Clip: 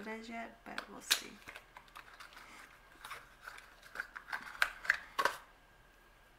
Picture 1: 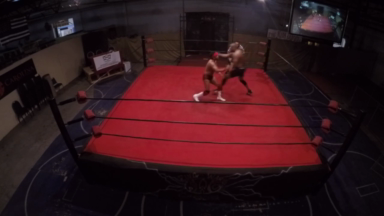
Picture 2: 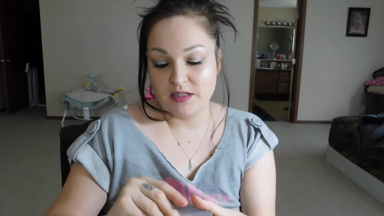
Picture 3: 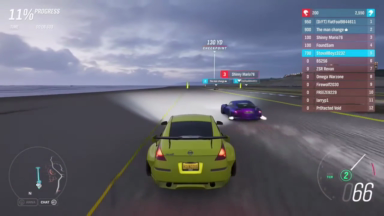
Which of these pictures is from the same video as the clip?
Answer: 2